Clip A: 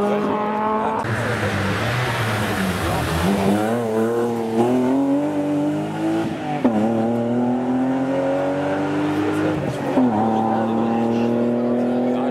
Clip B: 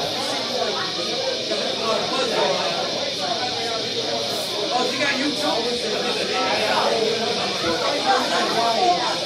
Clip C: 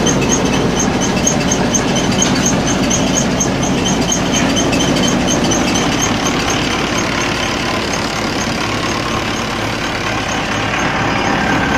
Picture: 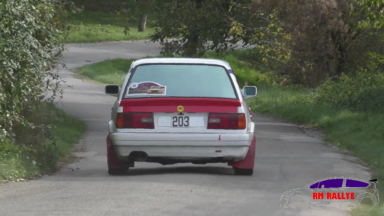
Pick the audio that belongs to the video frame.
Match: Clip A